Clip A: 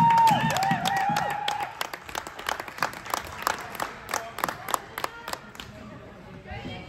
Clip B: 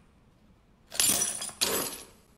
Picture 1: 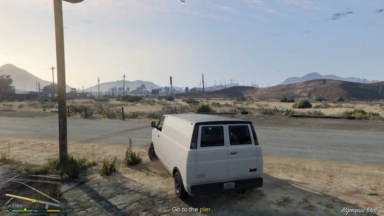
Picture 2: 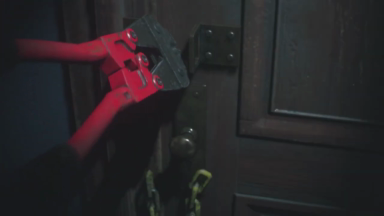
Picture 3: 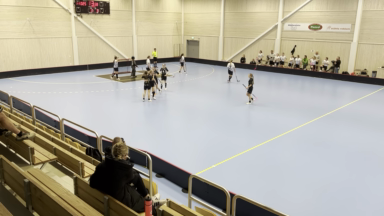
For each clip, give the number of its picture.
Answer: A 3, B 2